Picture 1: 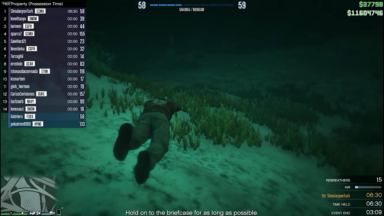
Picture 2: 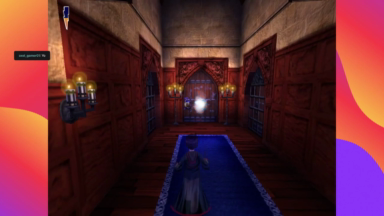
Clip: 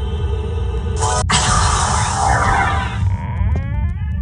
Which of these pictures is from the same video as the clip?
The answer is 2